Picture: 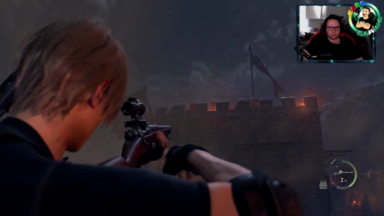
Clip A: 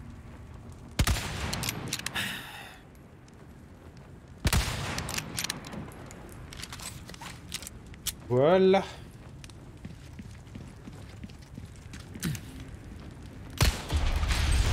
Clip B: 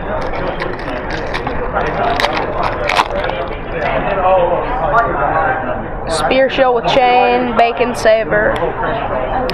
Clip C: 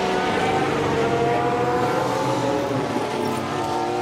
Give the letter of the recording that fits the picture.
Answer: A